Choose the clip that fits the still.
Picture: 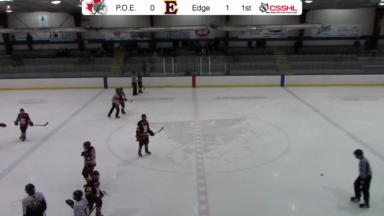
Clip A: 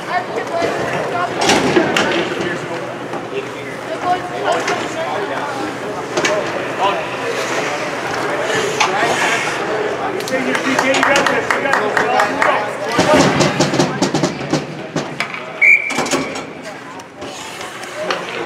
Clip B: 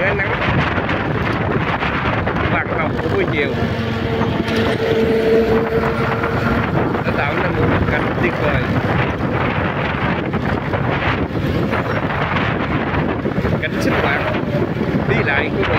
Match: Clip A